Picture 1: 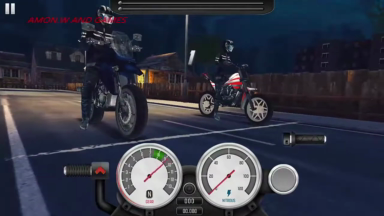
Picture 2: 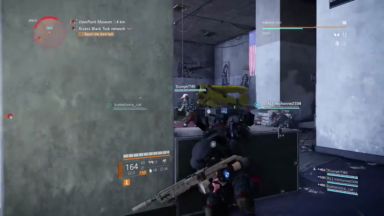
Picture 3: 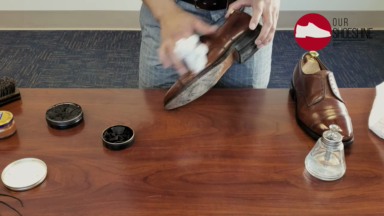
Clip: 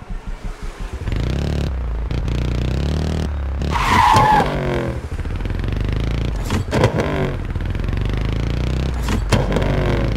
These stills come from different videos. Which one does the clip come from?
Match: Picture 1